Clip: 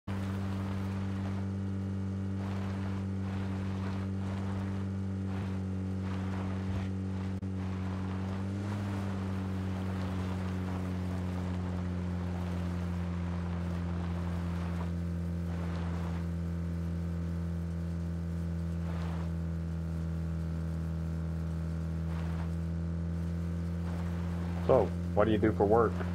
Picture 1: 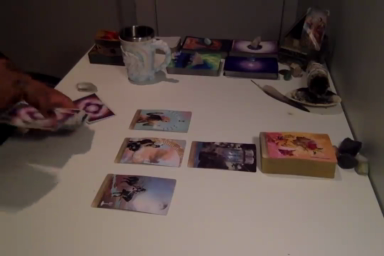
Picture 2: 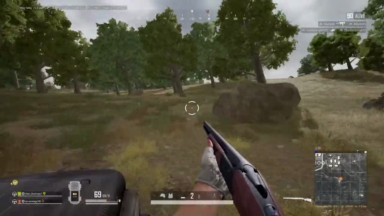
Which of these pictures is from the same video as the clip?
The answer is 2